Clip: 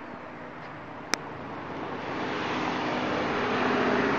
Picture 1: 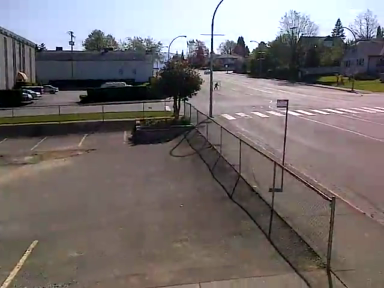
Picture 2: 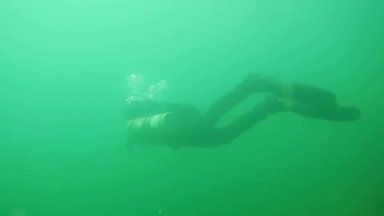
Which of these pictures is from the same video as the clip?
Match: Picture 1